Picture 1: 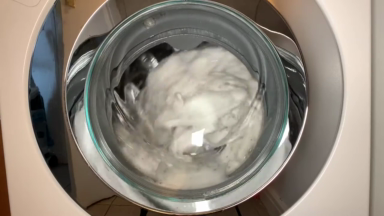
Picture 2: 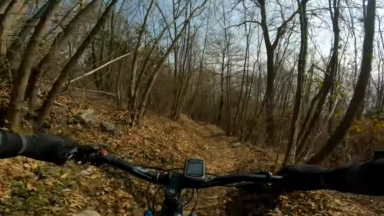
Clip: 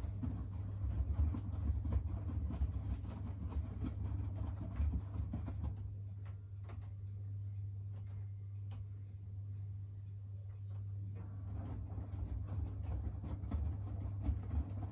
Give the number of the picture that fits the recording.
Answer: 1